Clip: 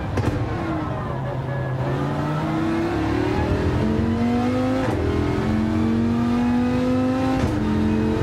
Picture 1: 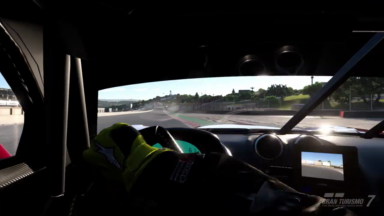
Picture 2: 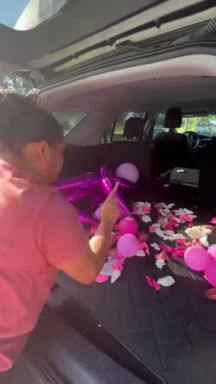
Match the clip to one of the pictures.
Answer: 1